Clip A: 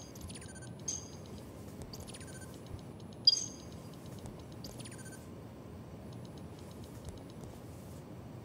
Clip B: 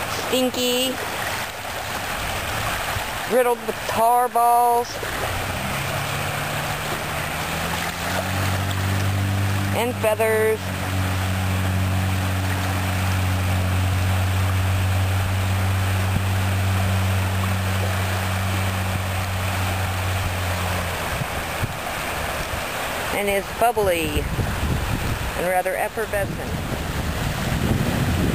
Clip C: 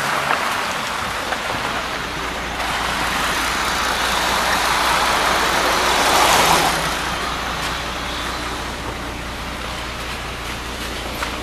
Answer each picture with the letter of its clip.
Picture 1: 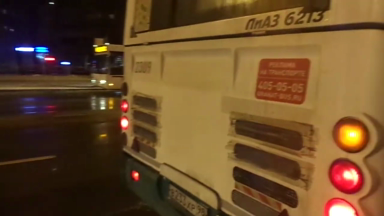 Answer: C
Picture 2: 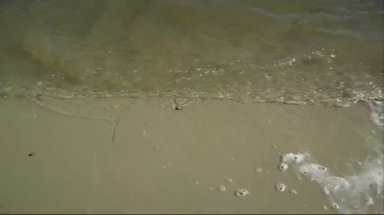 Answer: B